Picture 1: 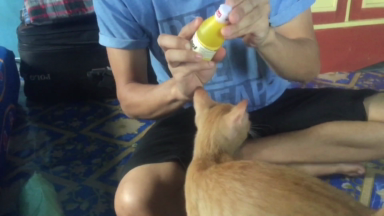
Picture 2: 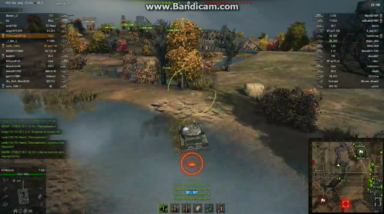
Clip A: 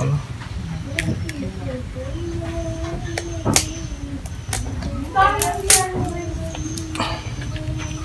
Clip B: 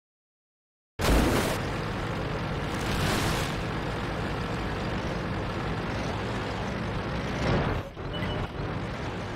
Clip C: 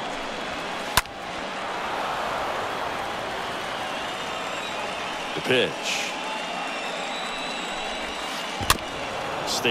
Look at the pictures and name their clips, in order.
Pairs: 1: A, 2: B